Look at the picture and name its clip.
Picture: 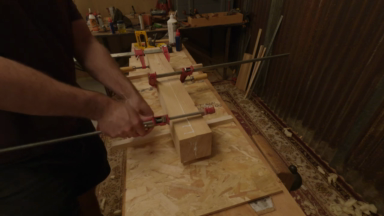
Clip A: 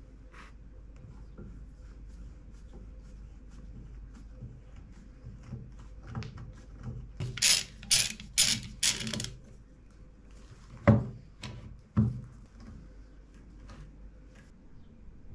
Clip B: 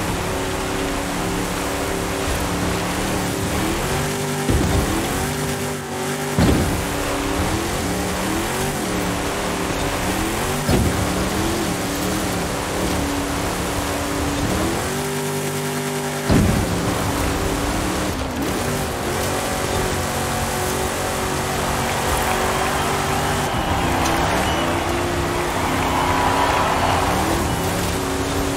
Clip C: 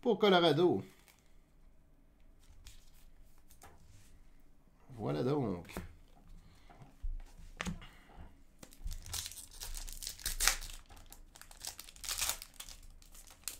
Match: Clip A